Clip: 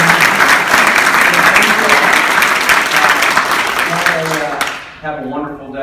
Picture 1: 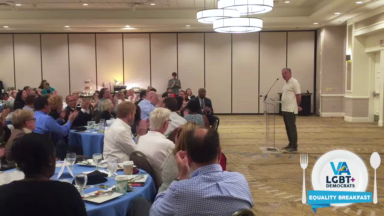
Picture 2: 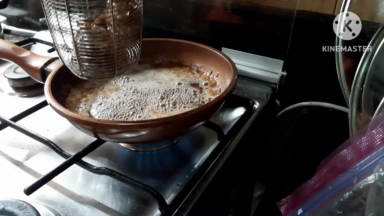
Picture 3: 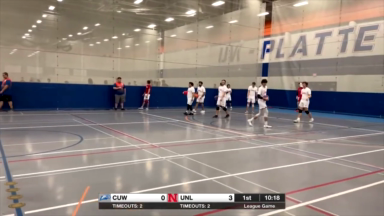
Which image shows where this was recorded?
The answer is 1